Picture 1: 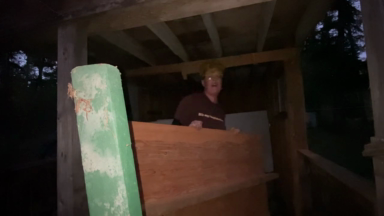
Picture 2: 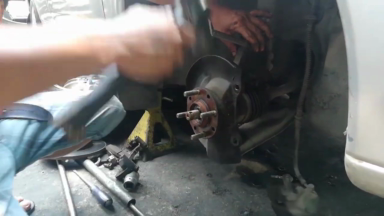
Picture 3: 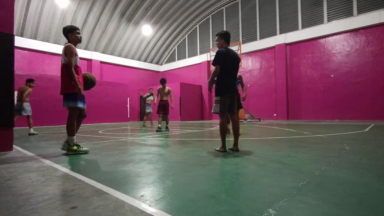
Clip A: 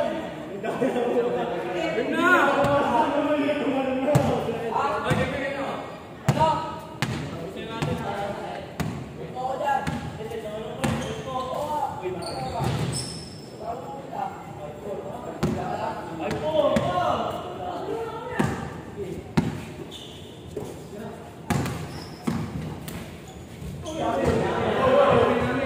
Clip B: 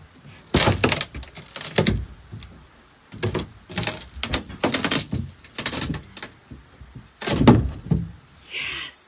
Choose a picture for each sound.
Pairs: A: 3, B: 1